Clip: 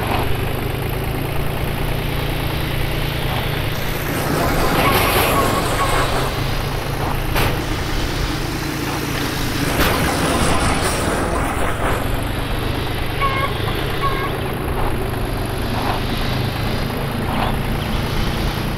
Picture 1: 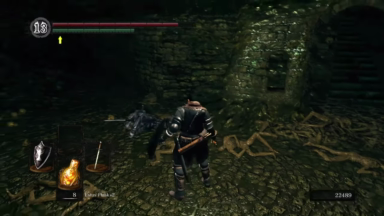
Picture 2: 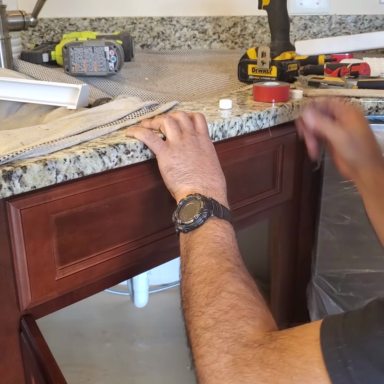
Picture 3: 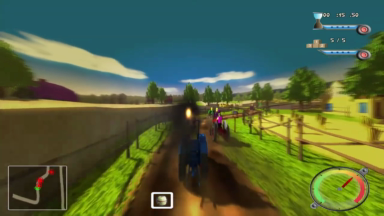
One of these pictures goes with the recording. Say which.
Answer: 3